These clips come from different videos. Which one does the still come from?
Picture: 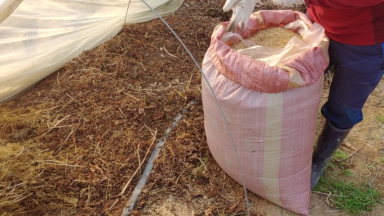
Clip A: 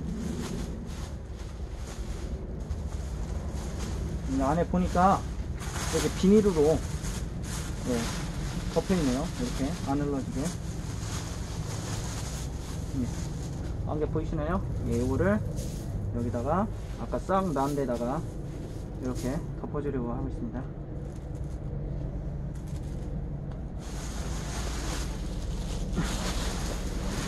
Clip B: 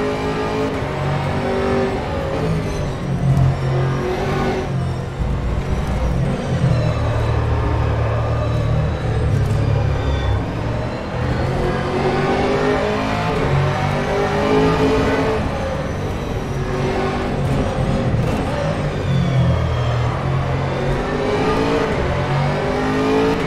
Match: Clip A